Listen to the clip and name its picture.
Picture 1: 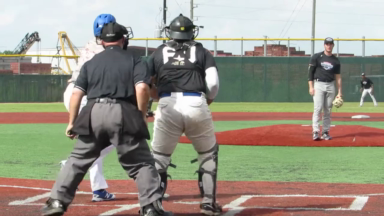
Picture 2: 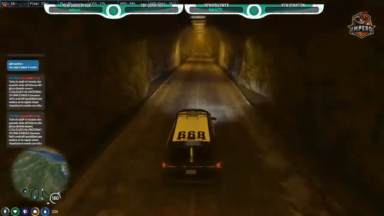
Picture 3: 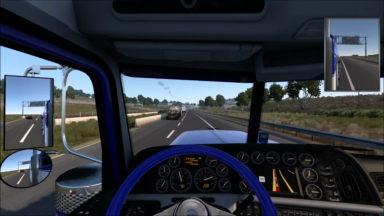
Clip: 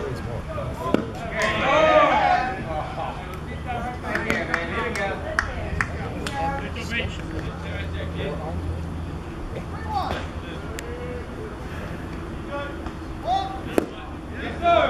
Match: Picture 1